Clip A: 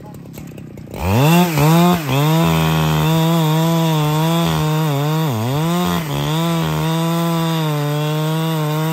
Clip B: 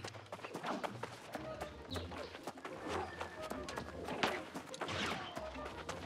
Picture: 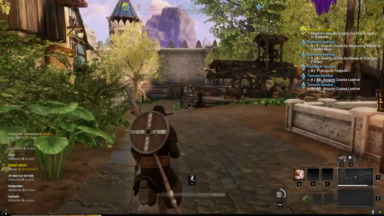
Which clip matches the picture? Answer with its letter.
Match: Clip B